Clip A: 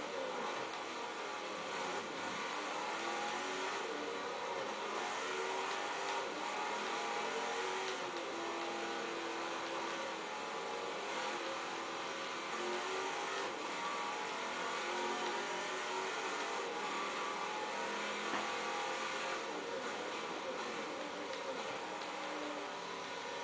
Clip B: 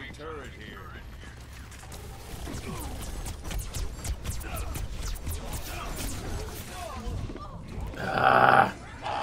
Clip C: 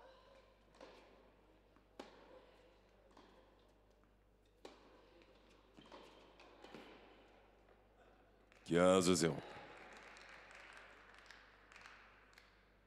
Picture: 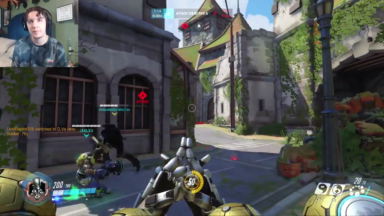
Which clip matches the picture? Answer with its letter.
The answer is B